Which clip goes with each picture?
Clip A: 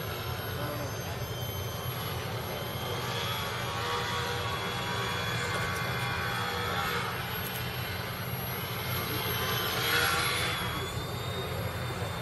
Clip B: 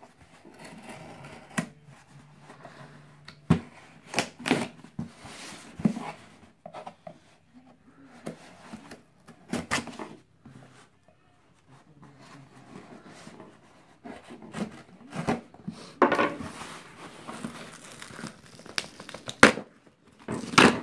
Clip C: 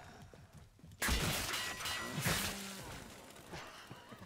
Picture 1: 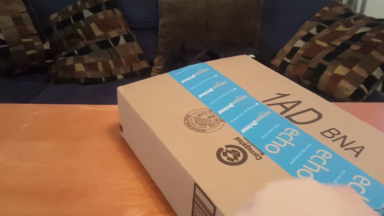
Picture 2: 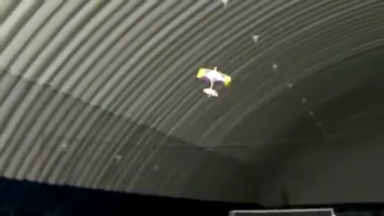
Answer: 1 B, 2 A